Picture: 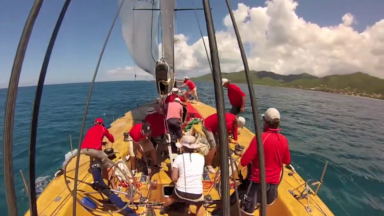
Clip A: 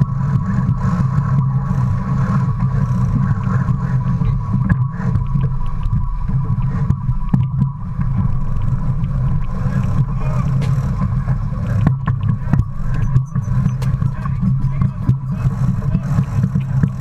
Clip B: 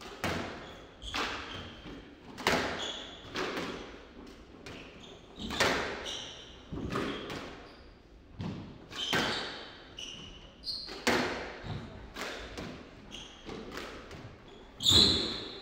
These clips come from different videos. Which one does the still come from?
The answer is A